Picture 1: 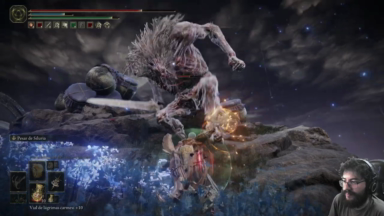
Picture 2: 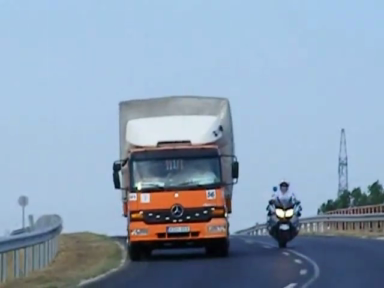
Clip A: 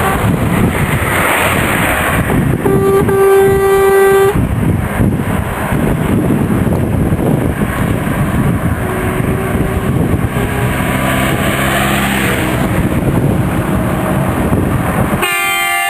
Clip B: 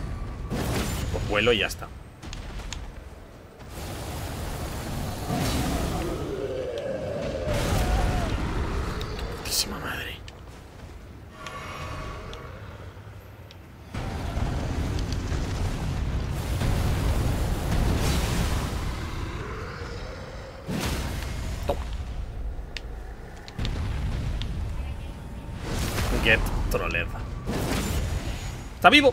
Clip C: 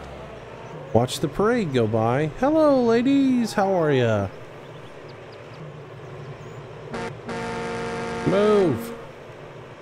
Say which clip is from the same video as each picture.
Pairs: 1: B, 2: A